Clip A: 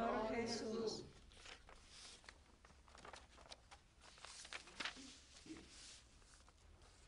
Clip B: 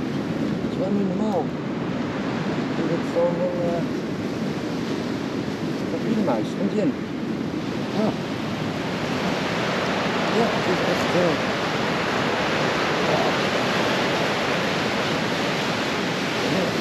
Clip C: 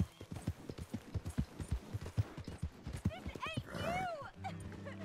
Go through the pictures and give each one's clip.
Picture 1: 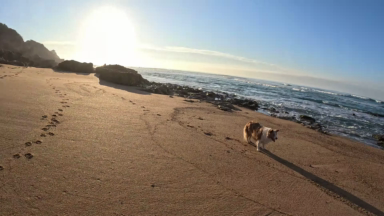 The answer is B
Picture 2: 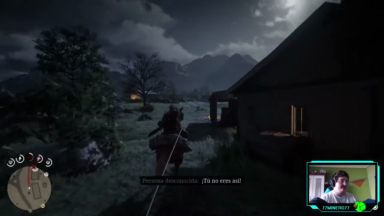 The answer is C